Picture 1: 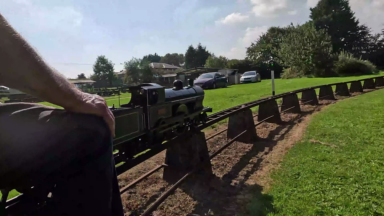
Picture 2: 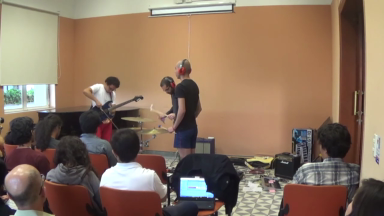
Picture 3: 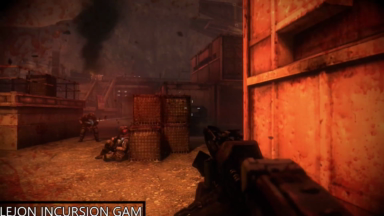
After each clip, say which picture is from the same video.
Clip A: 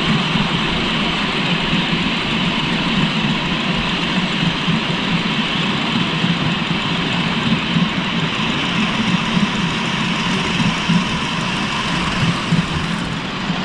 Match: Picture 1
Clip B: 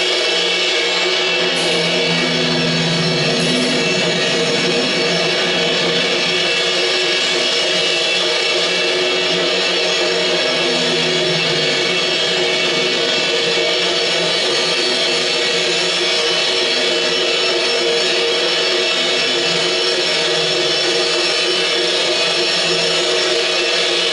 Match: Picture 2